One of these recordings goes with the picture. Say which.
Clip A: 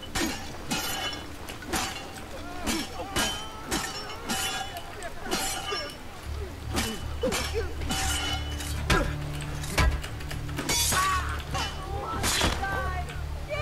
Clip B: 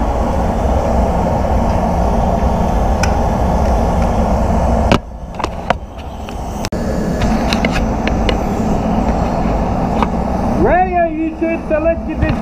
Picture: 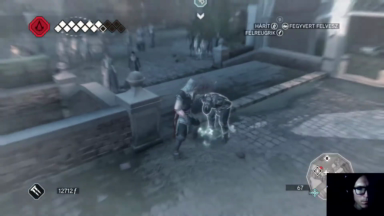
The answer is A